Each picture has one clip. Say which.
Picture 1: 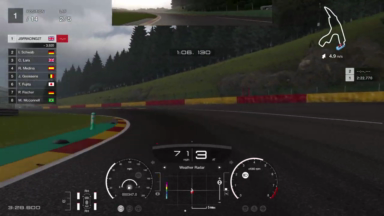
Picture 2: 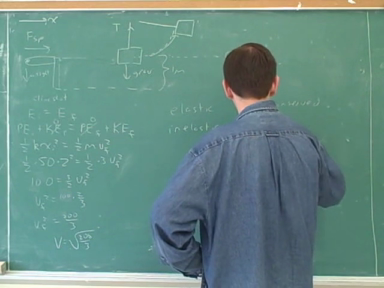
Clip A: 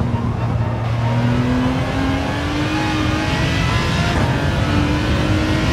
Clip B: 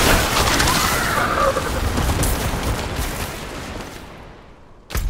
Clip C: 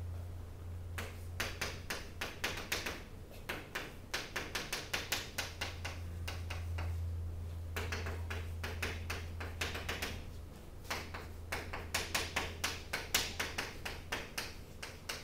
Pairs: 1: A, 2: C